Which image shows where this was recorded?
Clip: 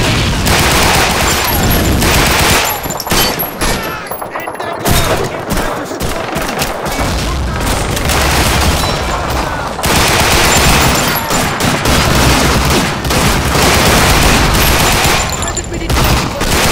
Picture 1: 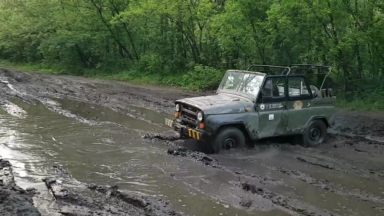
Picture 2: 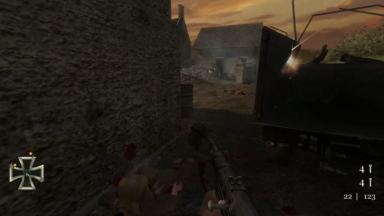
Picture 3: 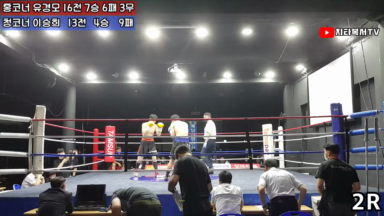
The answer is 2